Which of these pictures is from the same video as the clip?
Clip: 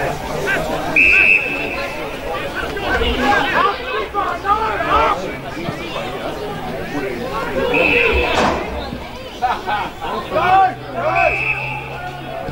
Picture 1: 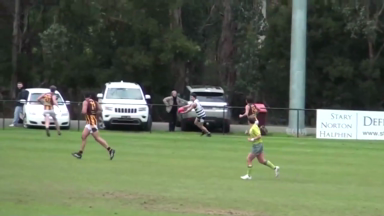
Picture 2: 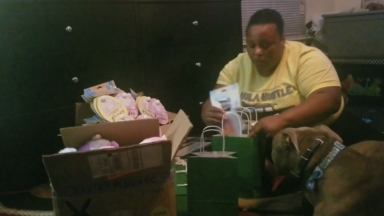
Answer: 1